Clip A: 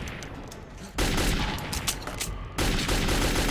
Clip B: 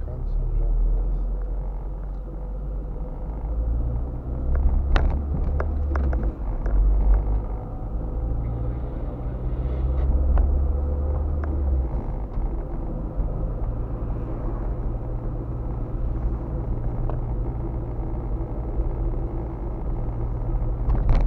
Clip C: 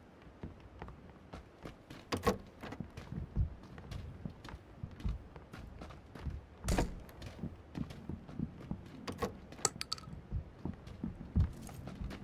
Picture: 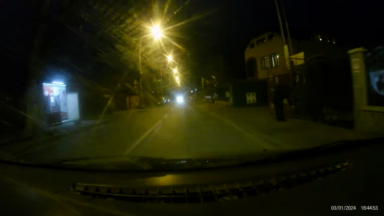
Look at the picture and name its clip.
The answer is B